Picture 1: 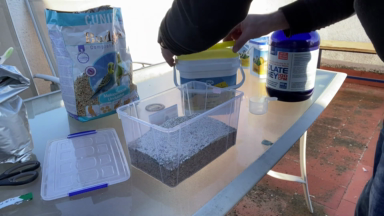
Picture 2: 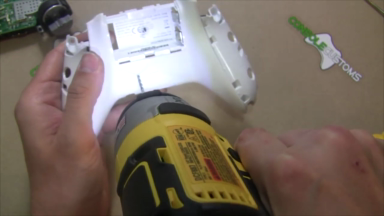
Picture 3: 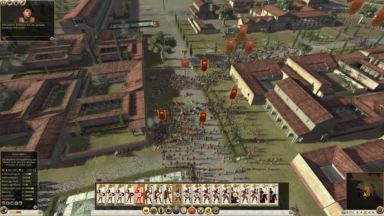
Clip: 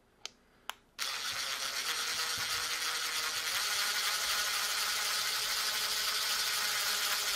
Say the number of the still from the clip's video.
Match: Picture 2